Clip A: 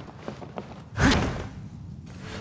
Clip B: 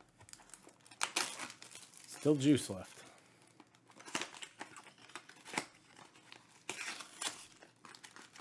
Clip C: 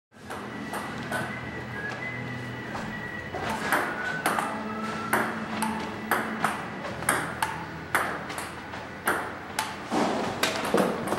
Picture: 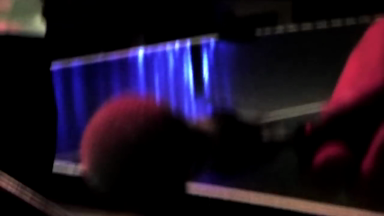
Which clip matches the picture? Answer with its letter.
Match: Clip C